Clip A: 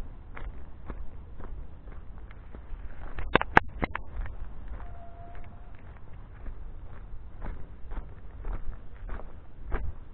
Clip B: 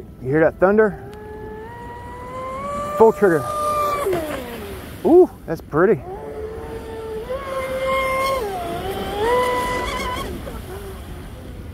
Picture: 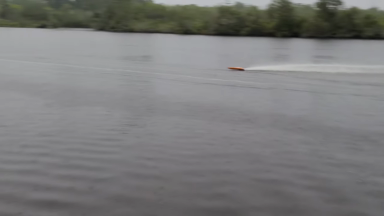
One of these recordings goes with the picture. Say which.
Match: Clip B